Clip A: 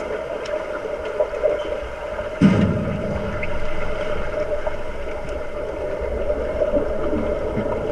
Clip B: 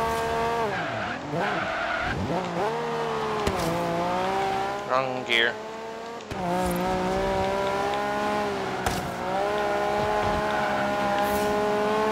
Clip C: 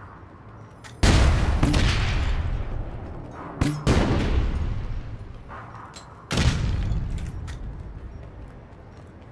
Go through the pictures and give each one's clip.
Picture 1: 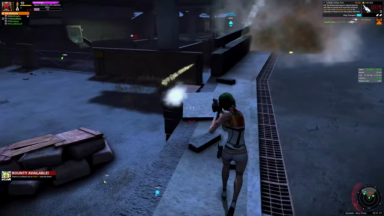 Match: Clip C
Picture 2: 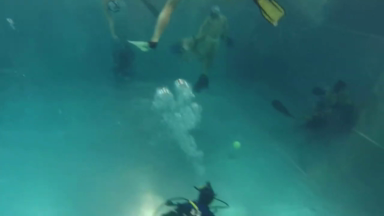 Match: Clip A